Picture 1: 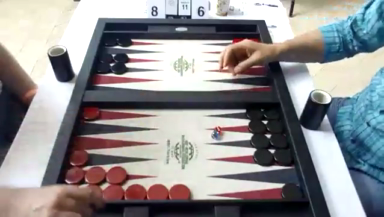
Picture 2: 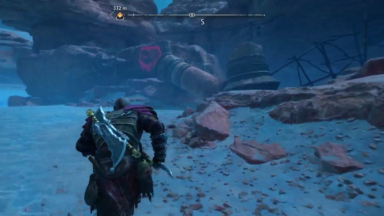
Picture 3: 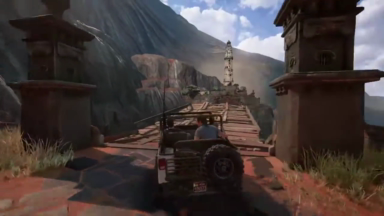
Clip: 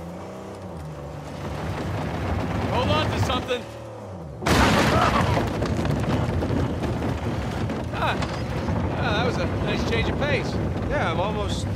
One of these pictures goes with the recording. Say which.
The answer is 3